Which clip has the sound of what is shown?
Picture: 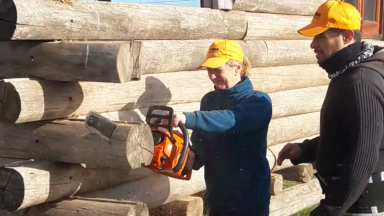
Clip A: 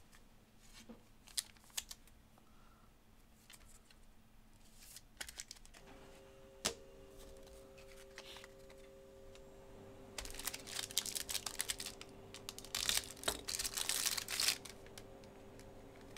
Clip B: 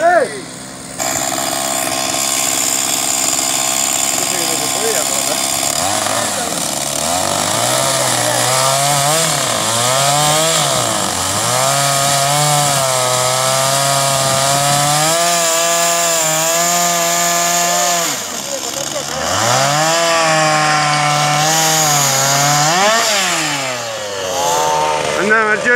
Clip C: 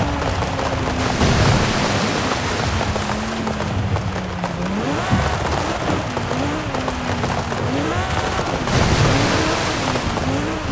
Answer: B